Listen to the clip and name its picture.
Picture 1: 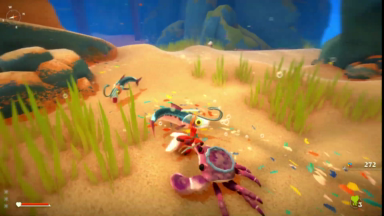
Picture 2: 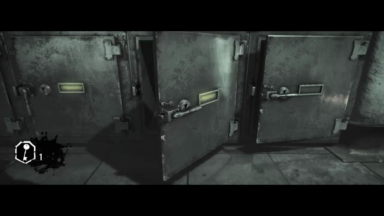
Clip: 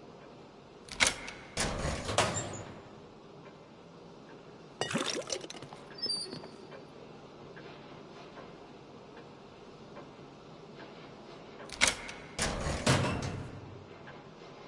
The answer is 2